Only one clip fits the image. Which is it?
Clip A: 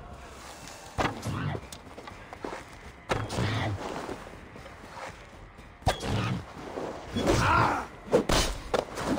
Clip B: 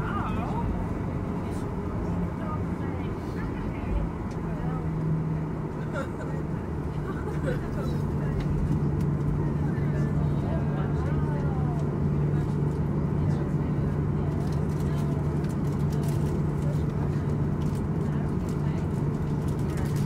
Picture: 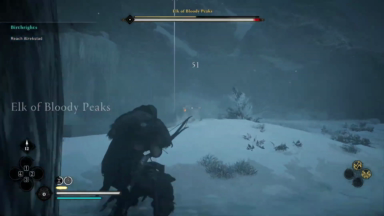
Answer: A